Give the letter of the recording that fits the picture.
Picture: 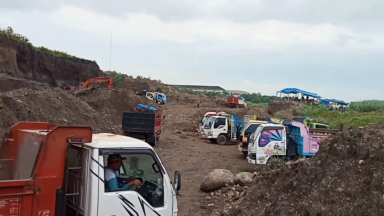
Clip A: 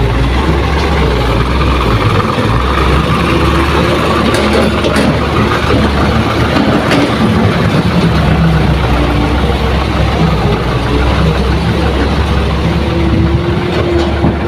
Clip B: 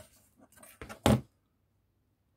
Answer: A